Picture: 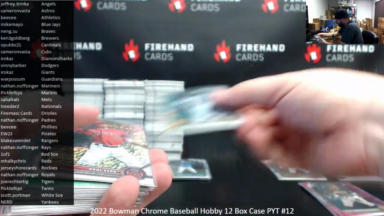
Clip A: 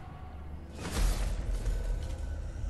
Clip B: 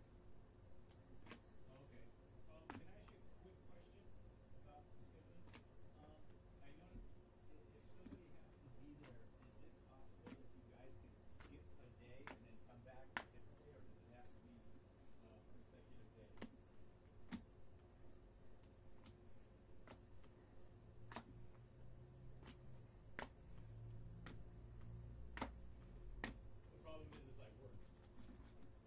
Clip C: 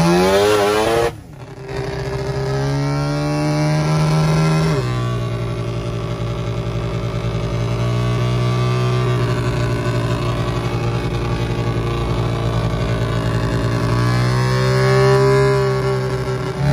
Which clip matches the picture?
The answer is B